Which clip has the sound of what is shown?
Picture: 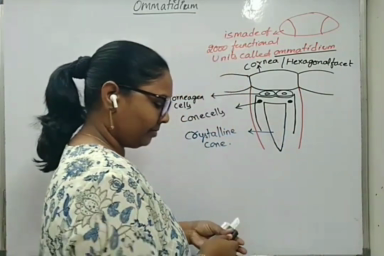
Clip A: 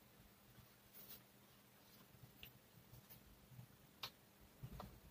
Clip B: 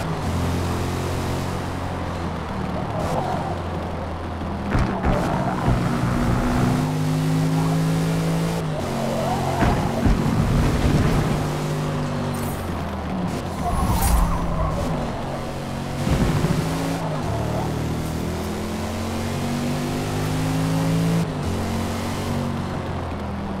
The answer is A